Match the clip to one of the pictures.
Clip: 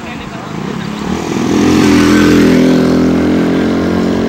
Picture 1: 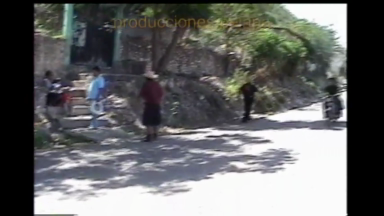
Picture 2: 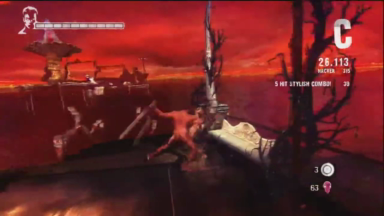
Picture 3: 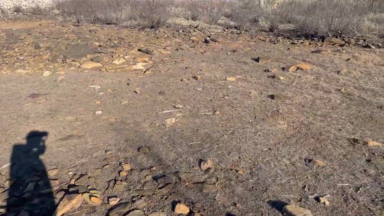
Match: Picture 1